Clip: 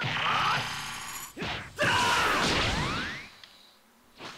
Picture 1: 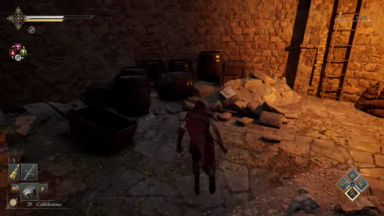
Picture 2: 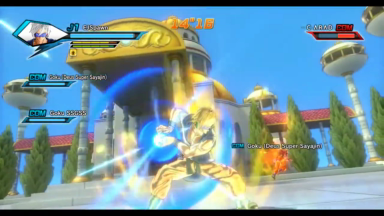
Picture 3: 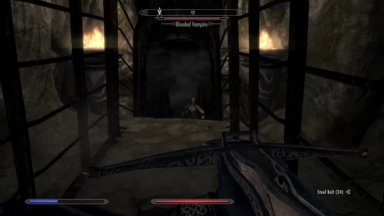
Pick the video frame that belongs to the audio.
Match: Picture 2